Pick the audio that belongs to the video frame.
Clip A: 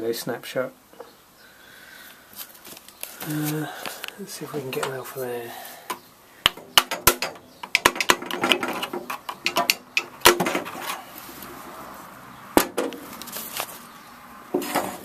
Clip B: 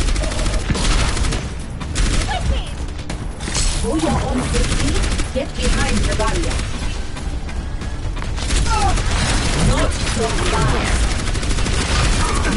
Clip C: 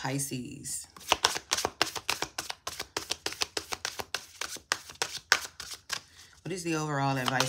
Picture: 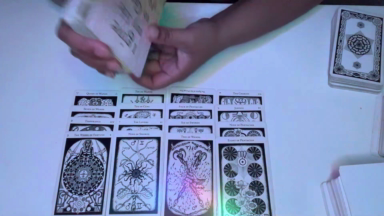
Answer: C